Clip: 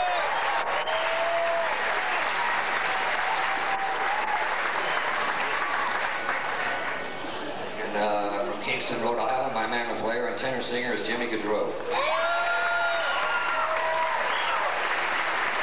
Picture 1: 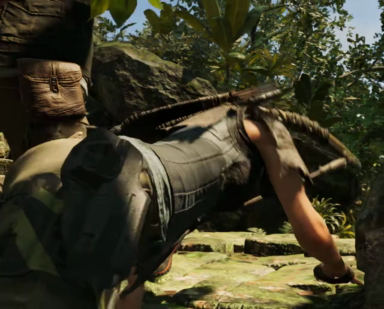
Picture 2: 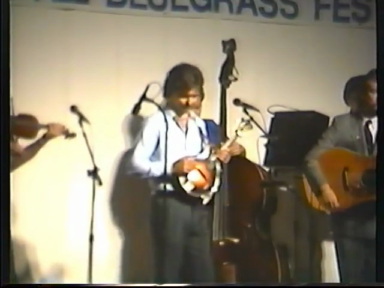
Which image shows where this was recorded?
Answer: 2